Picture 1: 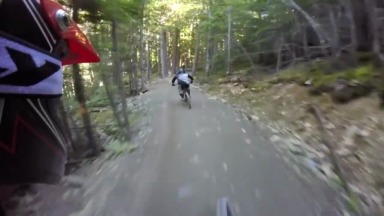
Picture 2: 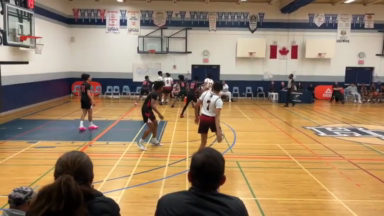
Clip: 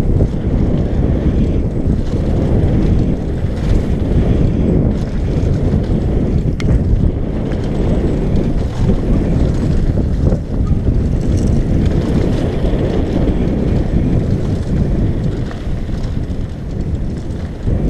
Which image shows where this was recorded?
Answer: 1